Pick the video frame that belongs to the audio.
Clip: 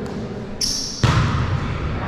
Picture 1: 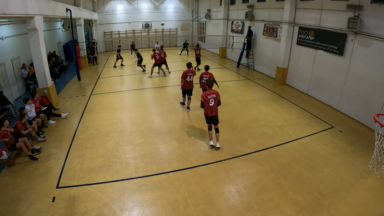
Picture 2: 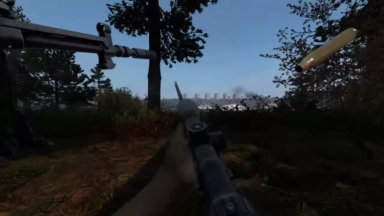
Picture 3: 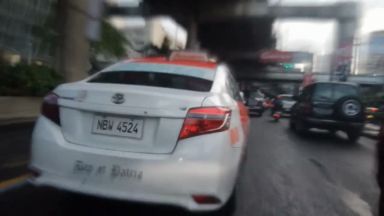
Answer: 1